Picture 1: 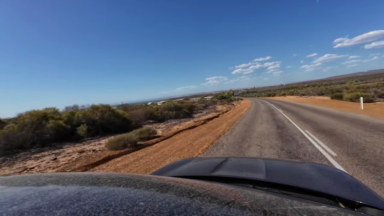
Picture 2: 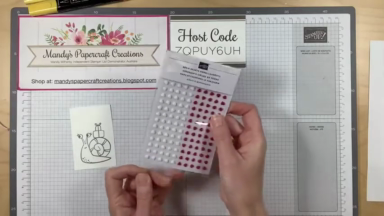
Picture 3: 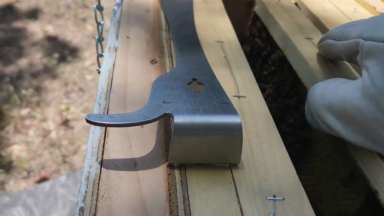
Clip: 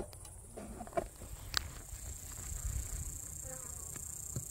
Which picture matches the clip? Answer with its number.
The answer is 3